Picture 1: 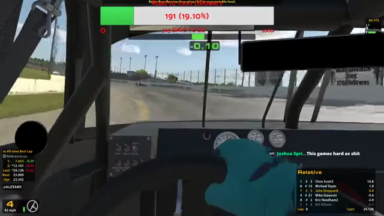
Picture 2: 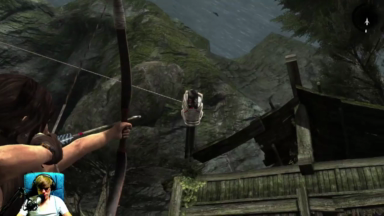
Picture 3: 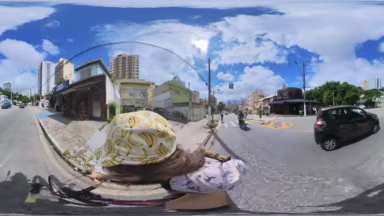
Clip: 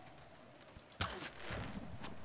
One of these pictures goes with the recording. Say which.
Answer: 2